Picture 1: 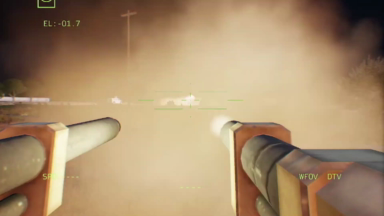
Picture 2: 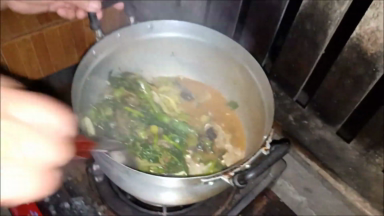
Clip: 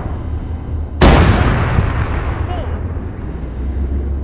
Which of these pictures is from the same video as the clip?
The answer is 1